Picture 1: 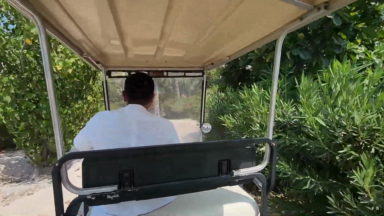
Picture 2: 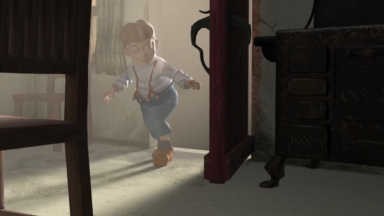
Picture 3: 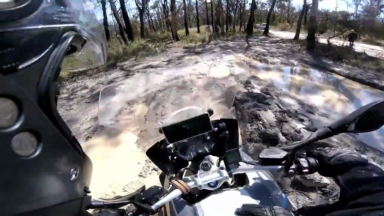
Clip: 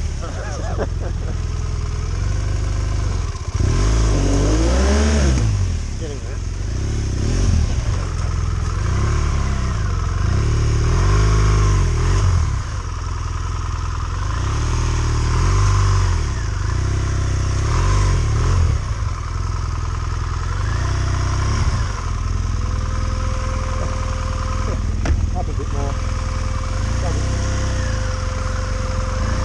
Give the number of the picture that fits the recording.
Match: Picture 3